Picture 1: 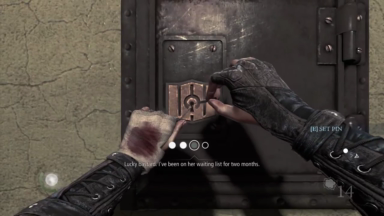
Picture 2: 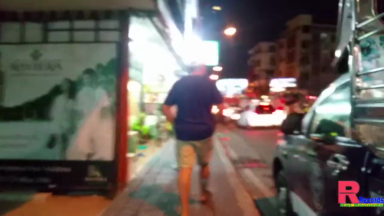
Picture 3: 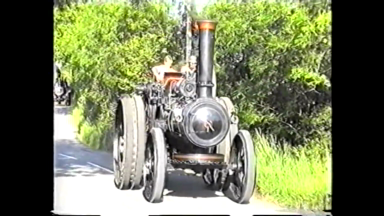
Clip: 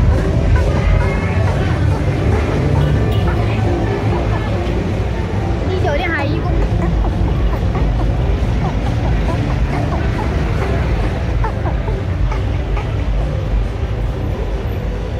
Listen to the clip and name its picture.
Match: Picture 2